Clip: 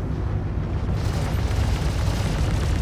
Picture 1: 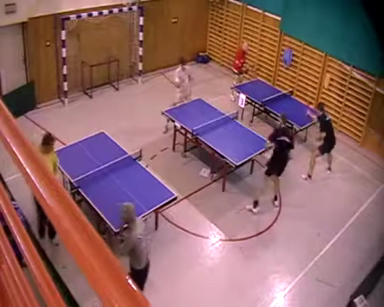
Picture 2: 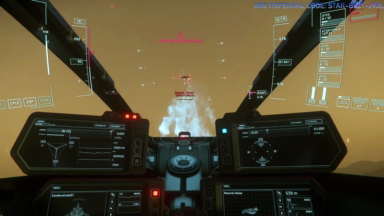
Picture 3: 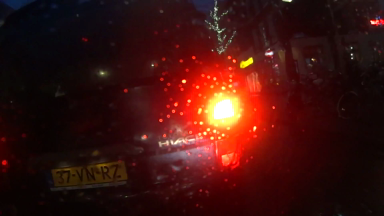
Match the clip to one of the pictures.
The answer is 2